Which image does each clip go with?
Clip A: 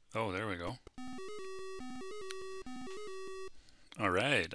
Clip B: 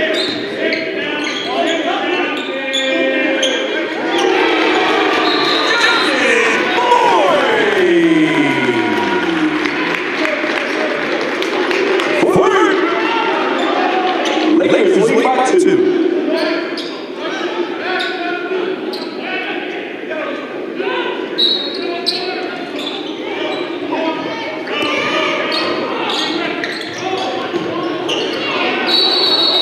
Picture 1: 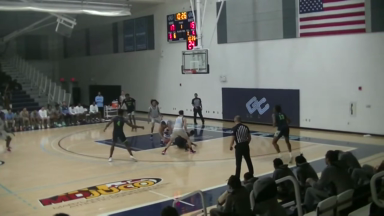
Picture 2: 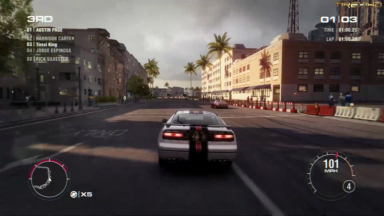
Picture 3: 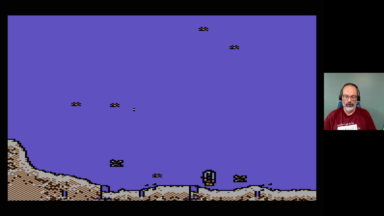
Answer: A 3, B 1